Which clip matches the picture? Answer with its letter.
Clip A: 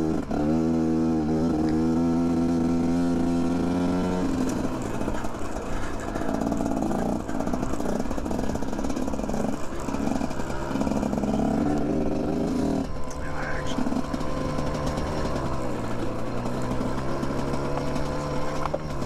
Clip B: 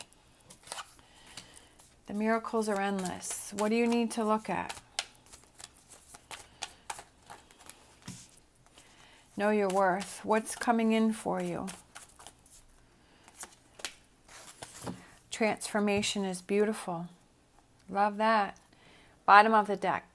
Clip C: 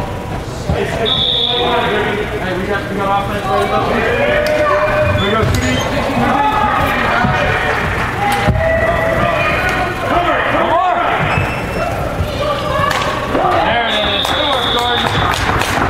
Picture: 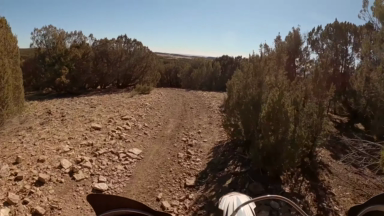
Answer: A